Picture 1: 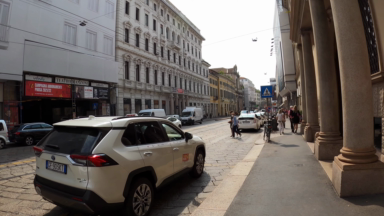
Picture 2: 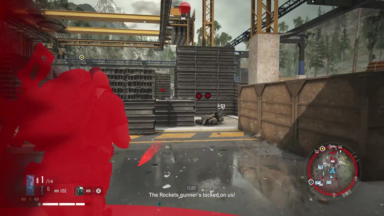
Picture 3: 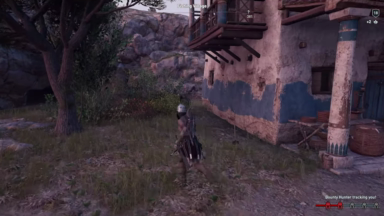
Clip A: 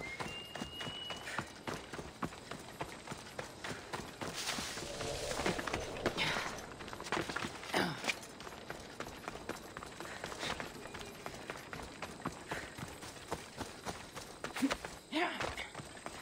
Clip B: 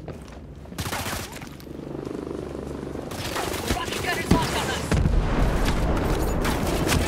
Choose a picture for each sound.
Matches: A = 3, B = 2